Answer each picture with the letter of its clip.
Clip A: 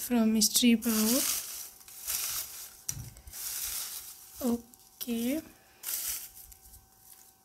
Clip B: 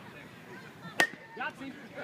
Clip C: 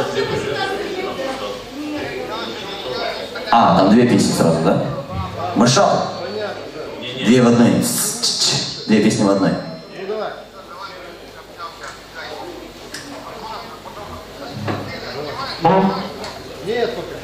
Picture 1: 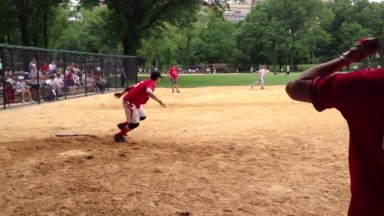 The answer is B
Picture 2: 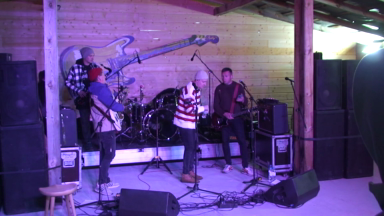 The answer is C